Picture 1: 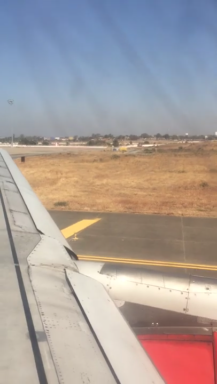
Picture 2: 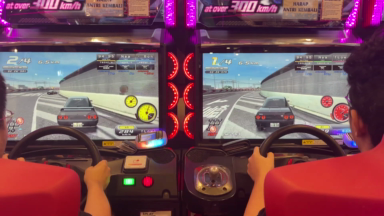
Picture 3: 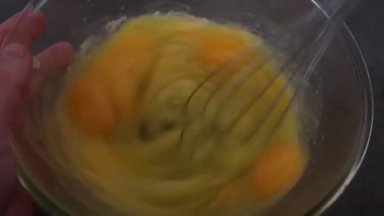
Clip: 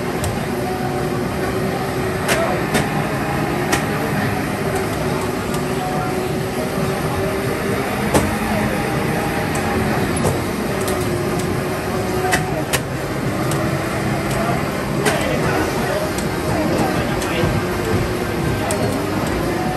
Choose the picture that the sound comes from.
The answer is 2